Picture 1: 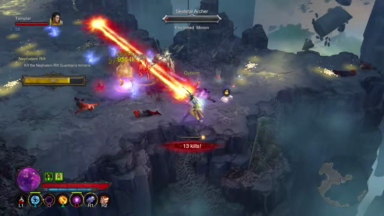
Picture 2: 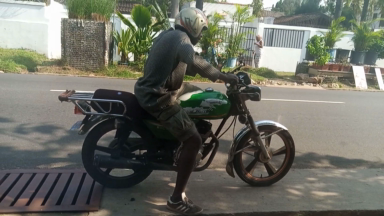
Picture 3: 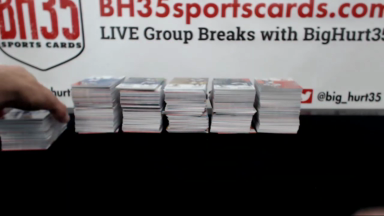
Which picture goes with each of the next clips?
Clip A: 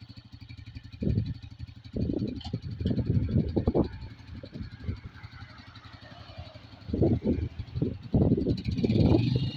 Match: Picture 2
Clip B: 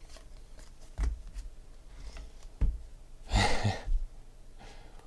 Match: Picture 3